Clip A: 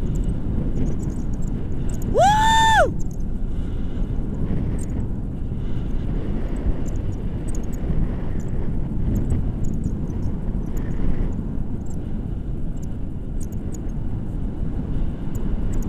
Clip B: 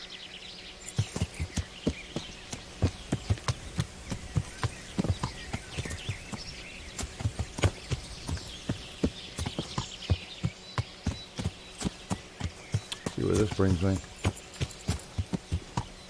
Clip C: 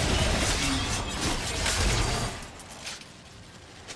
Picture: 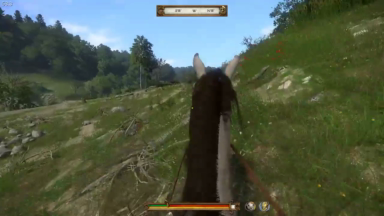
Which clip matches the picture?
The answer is B